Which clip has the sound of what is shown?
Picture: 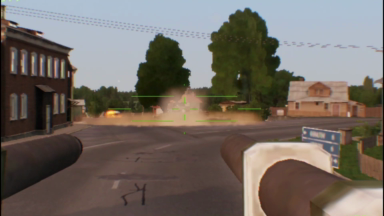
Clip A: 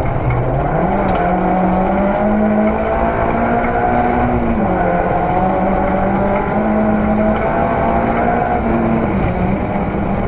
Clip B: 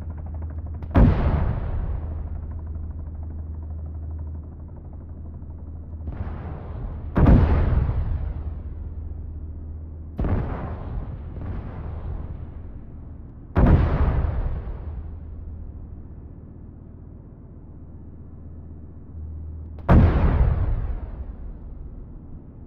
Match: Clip B